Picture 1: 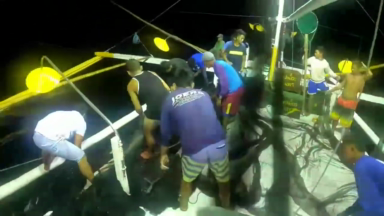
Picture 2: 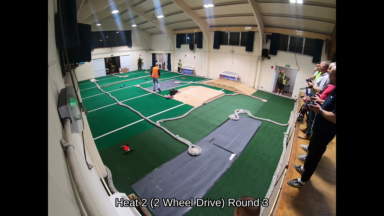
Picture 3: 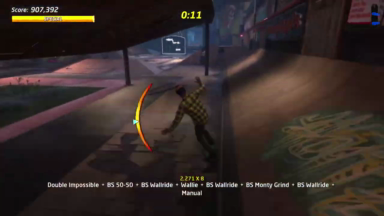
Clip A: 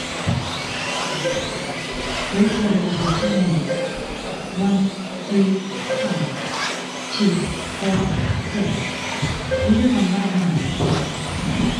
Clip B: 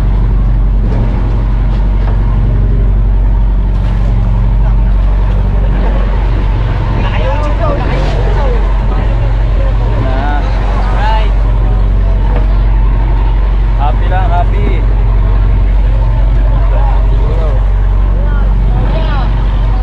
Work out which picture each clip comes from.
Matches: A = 2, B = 1